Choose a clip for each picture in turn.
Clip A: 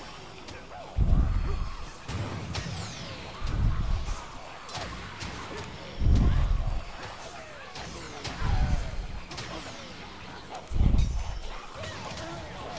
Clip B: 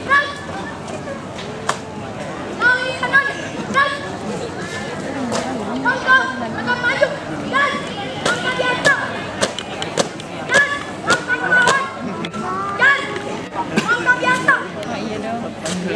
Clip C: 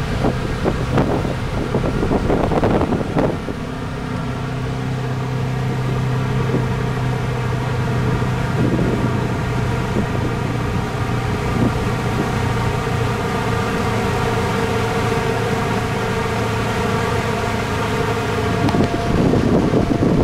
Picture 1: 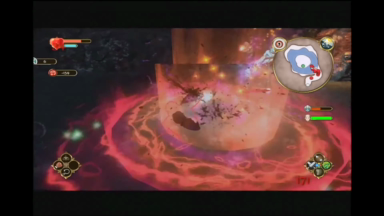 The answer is A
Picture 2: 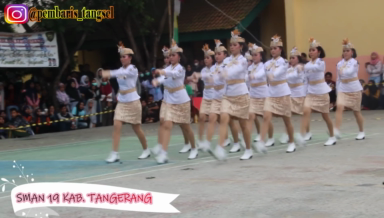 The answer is B